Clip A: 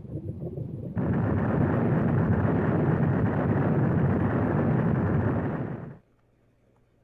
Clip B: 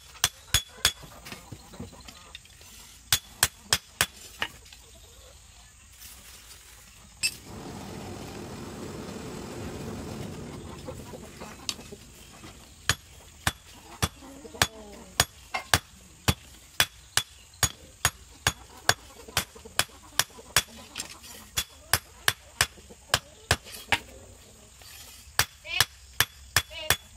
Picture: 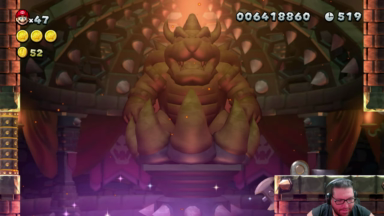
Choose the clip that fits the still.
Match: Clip A